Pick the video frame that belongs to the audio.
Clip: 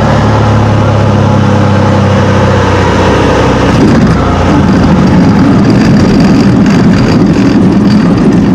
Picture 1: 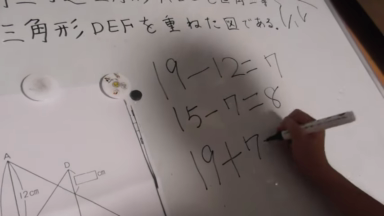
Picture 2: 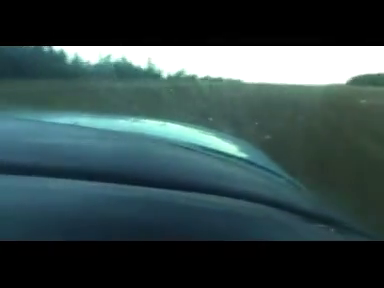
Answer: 2